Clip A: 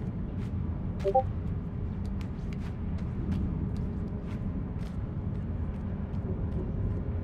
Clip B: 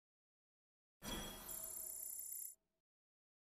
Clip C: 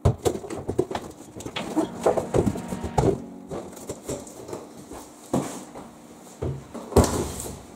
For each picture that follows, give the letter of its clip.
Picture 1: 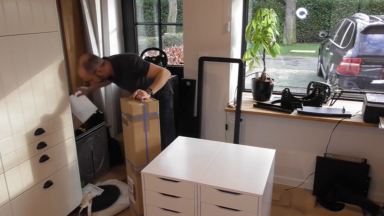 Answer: C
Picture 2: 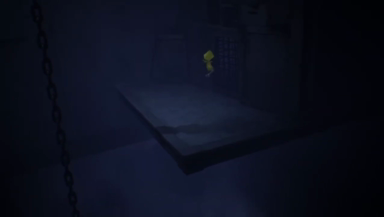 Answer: A